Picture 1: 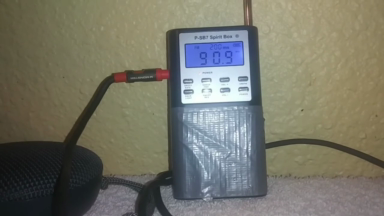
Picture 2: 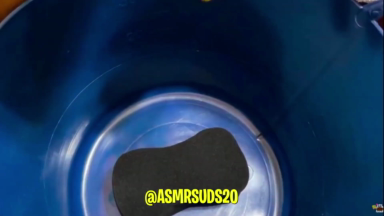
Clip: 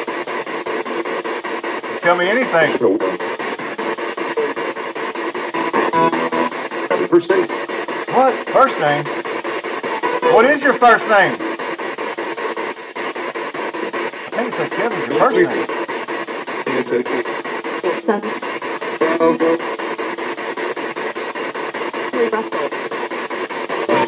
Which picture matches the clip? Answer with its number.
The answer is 1